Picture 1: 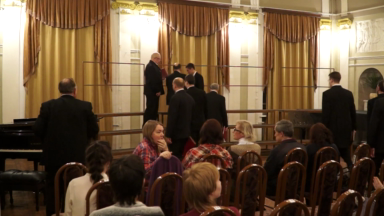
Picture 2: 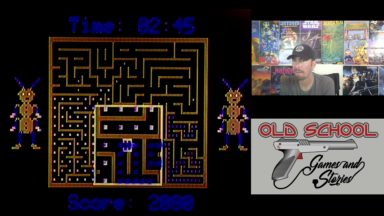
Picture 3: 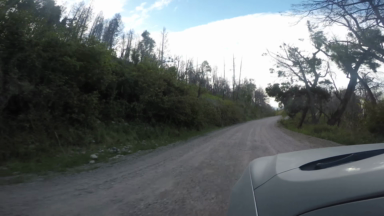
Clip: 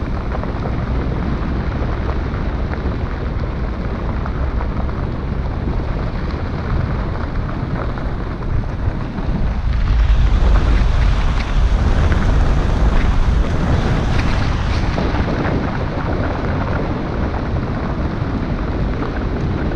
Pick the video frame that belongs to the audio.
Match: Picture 3